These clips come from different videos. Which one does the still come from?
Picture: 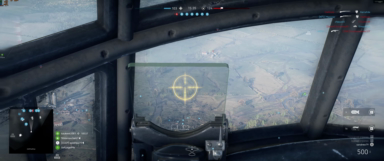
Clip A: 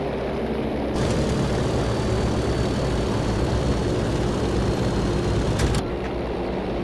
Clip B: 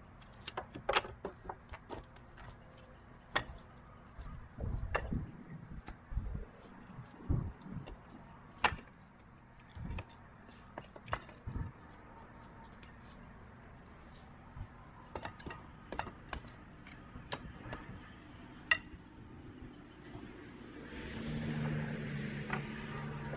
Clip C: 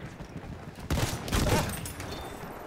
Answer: A